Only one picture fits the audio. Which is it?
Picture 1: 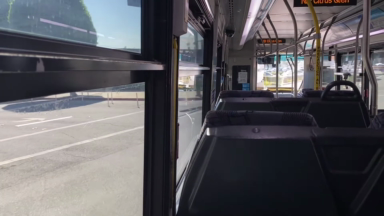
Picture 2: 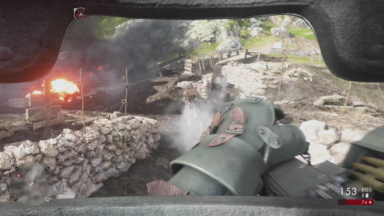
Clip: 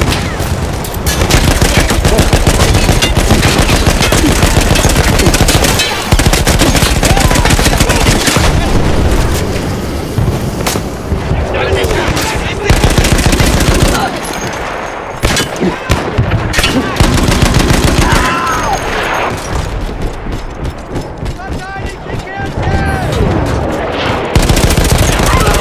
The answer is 2